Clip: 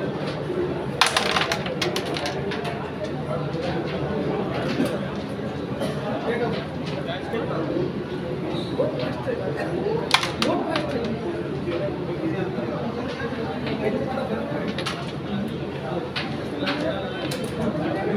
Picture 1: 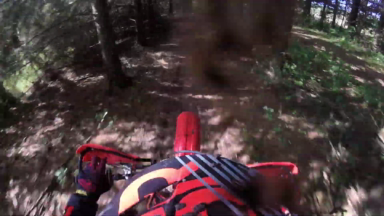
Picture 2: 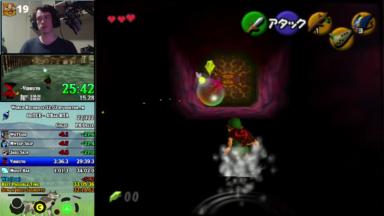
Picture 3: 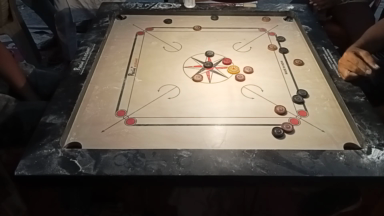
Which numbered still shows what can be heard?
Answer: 3